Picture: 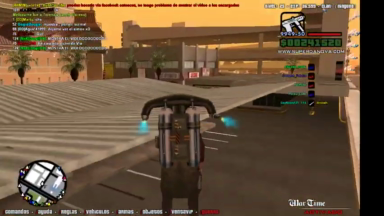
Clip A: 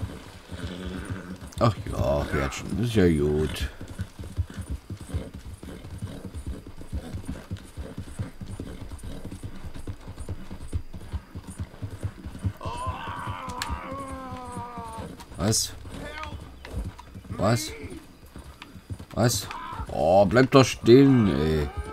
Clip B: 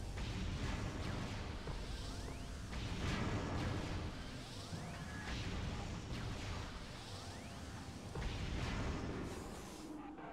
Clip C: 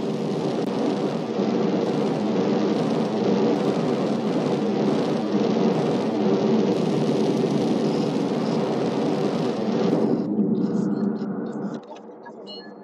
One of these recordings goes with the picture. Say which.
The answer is C